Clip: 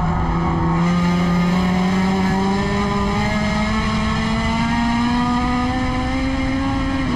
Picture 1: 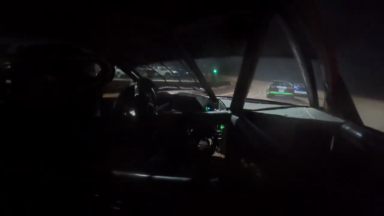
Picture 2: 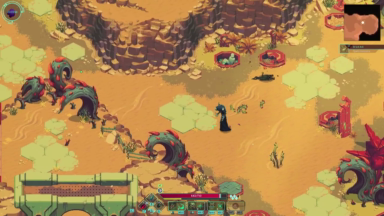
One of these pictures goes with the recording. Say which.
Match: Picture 1